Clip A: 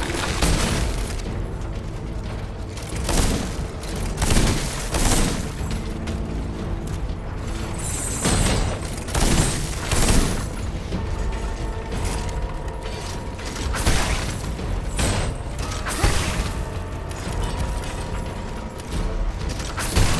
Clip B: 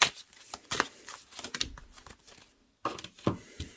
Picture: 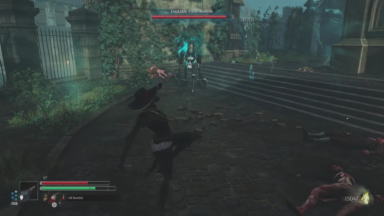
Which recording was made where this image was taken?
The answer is A